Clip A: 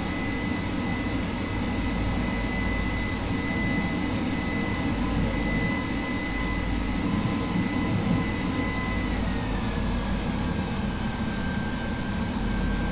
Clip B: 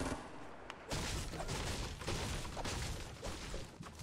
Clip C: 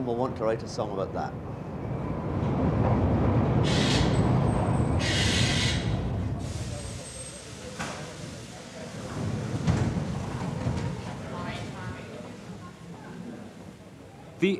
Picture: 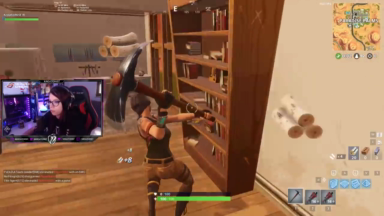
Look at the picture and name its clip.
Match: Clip B